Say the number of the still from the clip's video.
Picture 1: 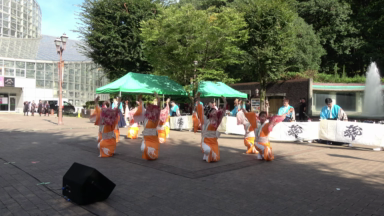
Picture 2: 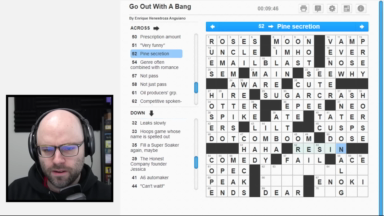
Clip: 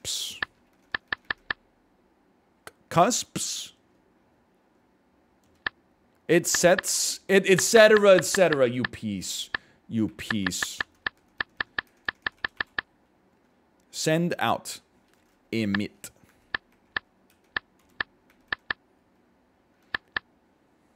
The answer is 2